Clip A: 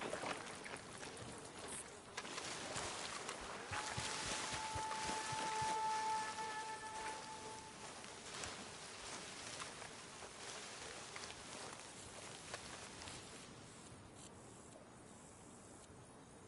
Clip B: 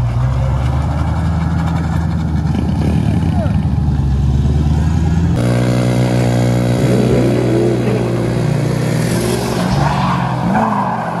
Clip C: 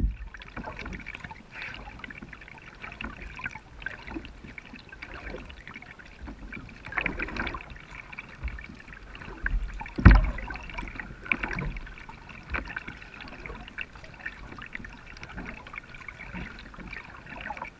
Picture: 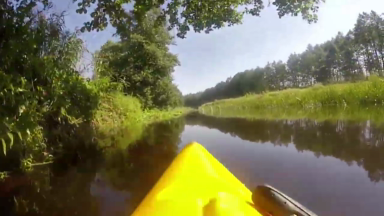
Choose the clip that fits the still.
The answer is C